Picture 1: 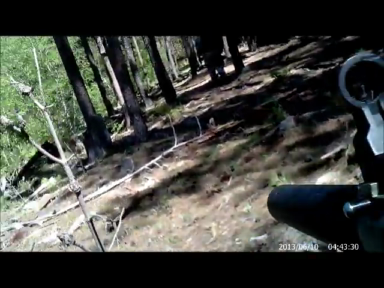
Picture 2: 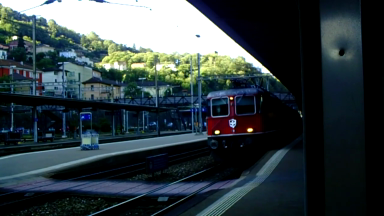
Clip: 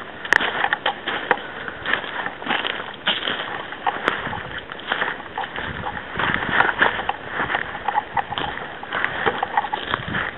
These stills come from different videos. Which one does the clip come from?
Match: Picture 1